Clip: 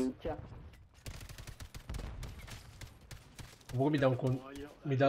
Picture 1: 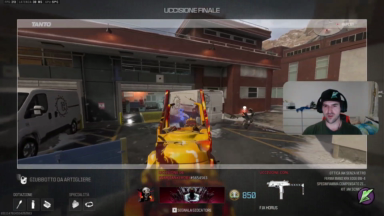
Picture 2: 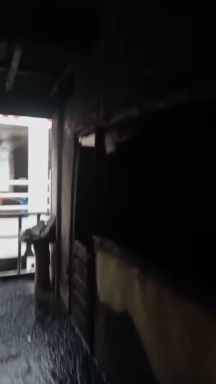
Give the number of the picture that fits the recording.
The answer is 1